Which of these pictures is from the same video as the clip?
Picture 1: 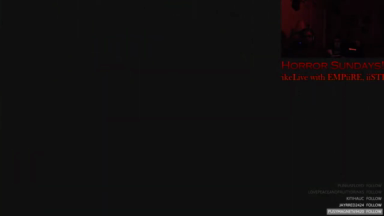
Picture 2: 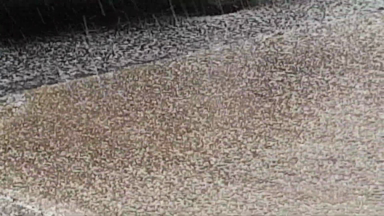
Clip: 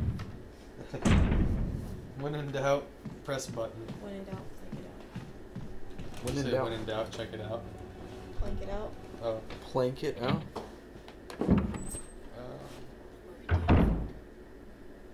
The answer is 1